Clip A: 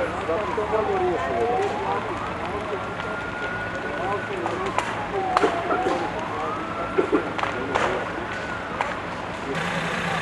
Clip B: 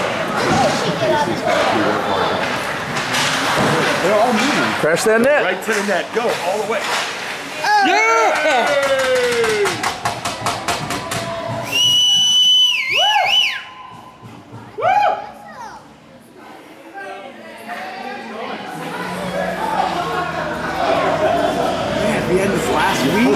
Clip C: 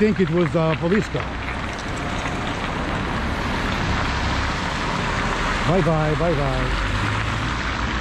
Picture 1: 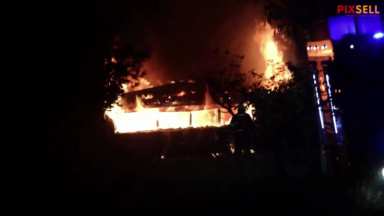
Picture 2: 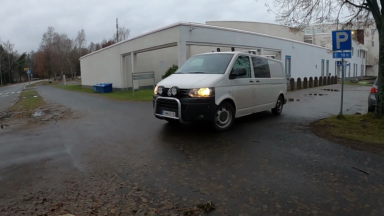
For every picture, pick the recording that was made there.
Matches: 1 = A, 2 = C